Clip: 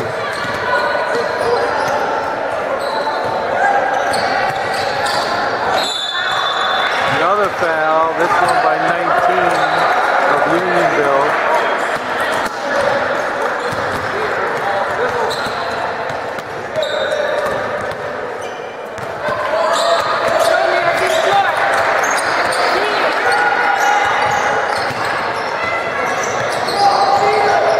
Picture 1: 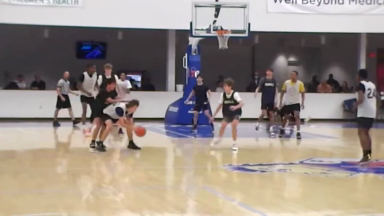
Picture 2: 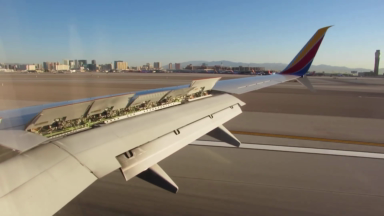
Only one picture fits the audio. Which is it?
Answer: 1